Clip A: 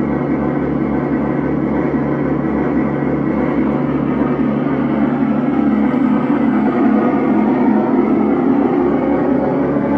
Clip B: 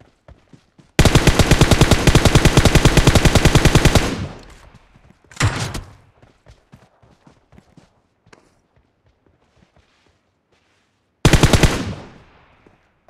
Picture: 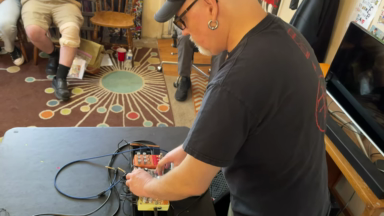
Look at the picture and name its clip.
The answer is A